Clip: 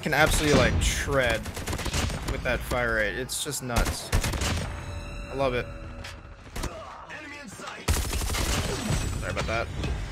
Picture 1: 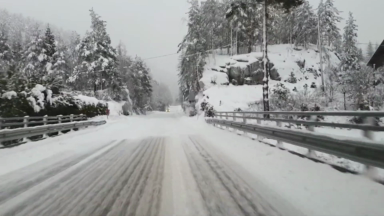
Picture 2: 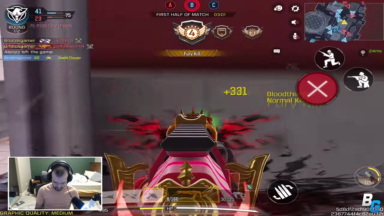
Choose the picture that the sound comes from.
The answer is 2